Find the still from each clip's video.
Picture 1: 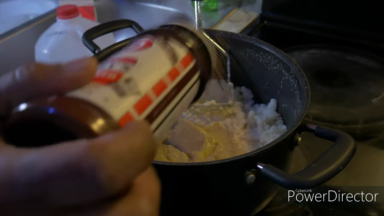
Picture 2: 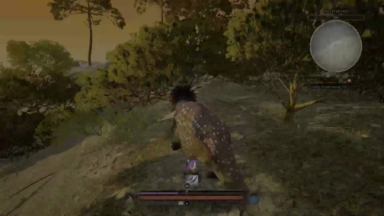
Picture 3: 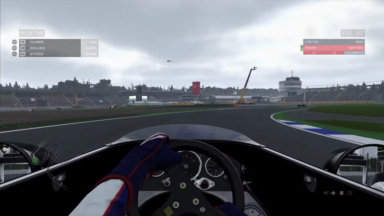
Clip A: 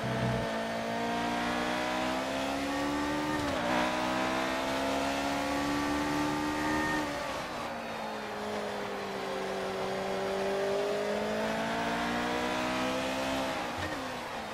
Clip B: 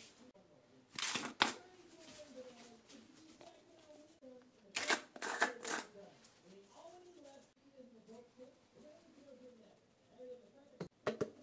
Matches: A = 3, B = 1